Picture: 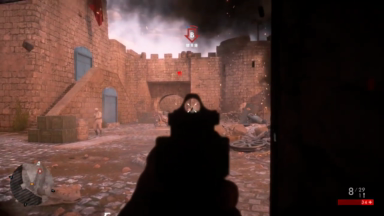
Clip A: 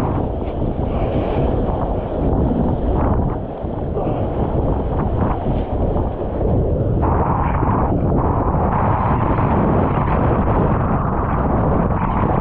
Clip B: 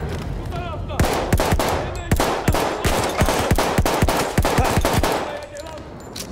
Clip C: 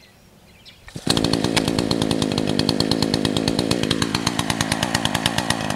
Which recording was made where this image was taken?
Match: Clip B